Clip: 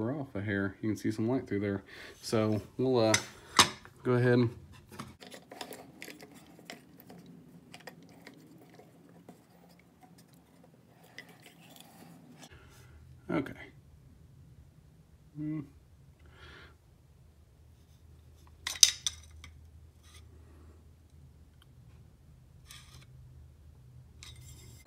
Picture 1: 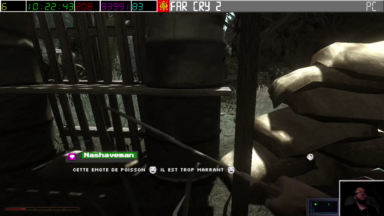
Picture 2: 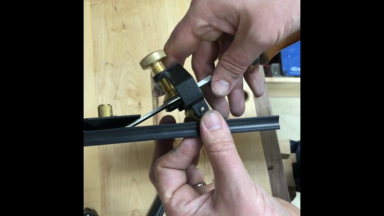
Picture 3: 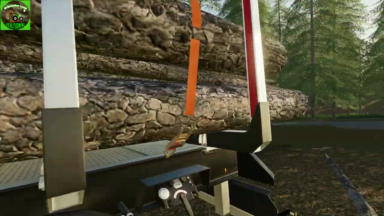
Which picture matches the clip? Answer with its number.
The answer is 2